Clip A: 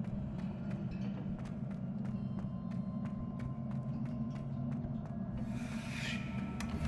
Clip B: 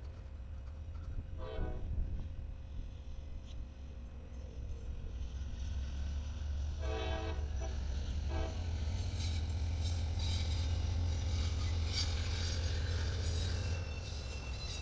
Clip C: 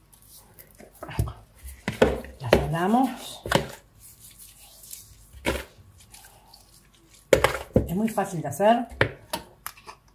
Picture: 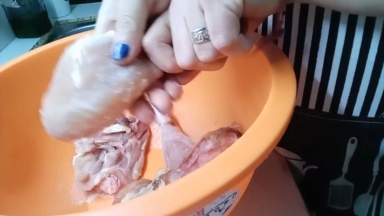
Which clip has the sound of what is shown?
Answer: C